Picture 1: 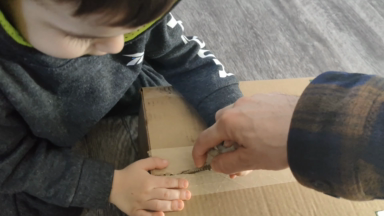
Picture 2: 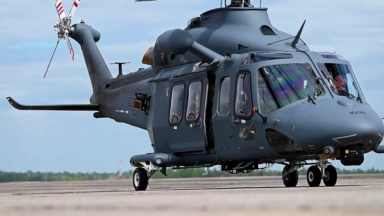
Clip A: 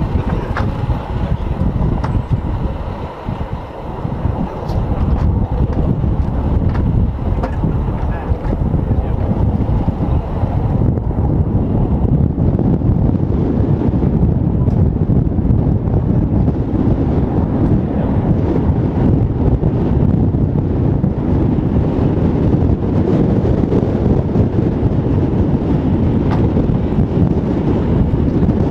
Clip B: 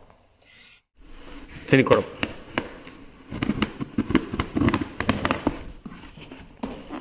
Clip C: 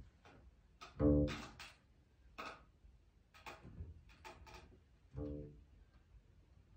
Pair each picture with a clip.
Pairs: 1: B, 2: A